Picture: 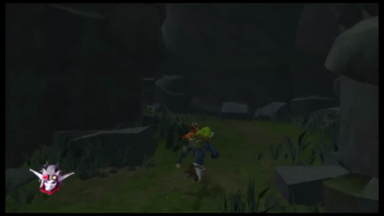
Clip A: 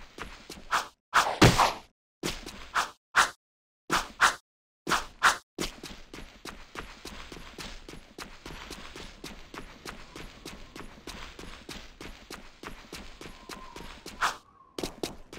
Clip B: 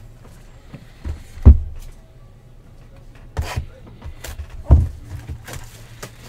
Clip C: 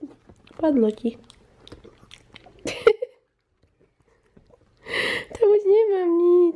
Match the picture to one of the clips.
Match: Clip A